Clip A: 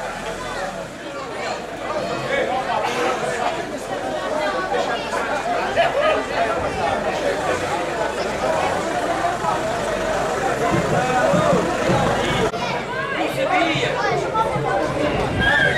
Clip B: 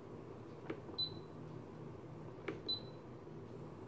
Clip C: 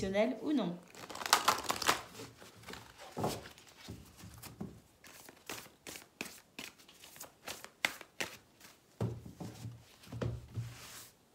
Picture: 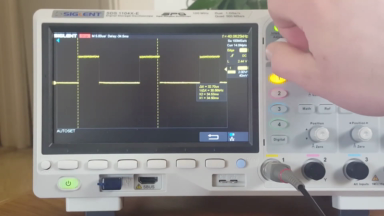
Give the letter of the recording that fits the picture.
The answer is B